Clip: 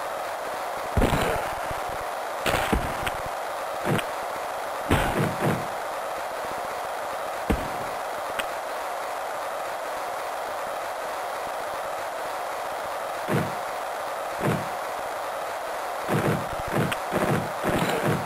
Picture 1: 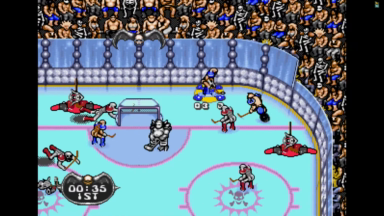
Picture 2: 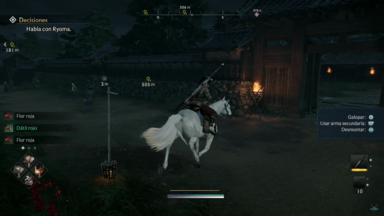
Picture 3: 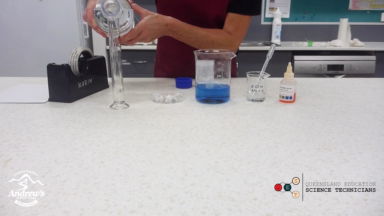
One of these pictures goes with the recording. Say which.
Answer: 1